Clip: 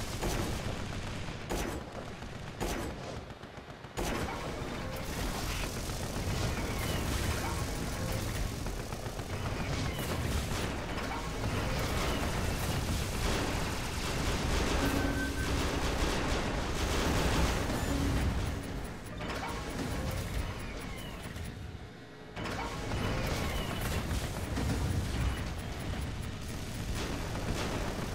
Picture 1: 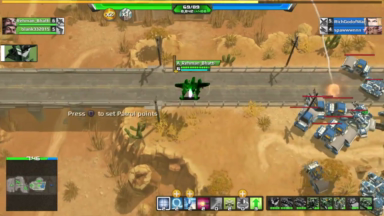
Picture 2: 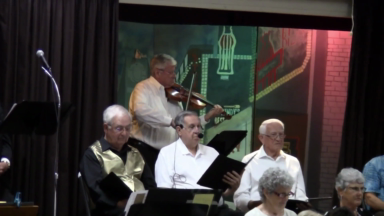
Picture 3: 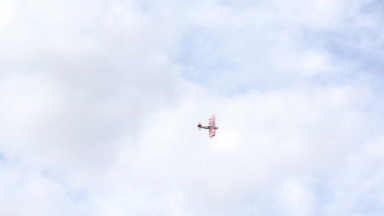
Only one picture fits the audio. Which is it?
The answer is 1